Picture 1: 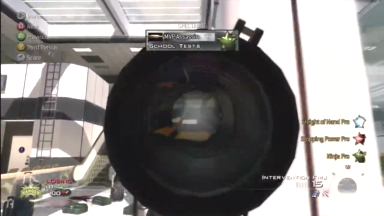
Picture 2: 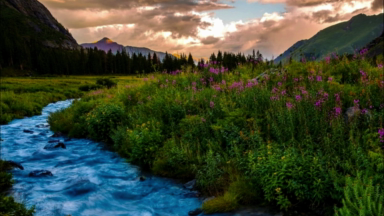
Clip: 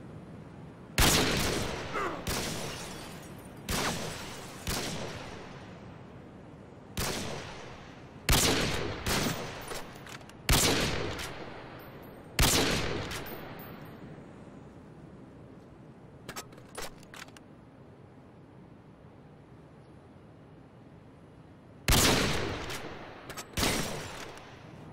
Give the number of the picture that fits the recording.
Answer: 1